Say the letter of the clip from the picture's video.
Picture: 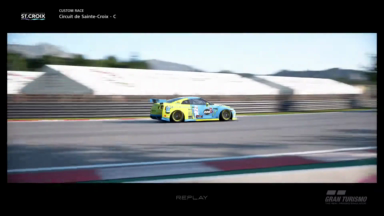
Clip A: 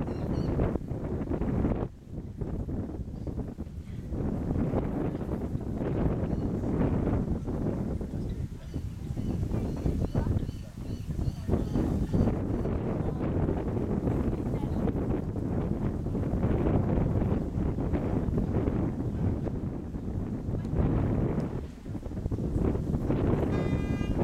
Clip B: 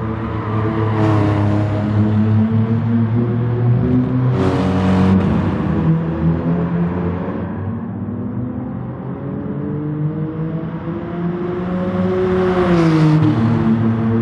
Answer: B